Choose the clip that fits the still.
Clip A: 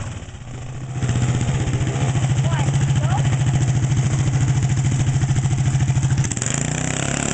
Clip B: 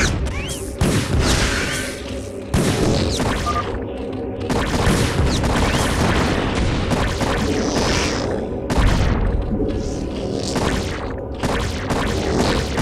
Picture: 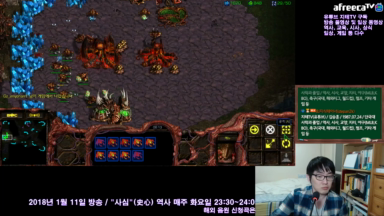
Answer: B